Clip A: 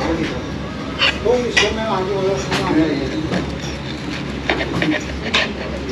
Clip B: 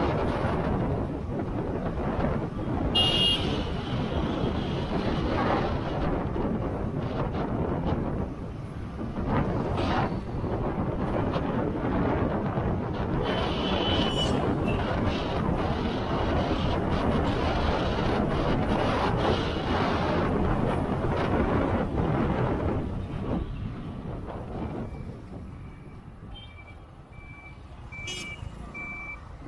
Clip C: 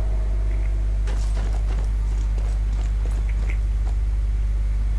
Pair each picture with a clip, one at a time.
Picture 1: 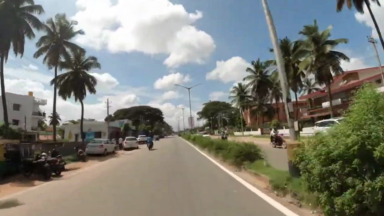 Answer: B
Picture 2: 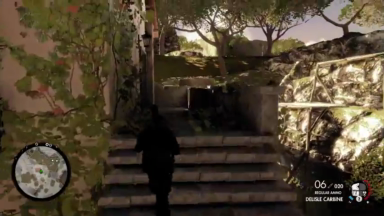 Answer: C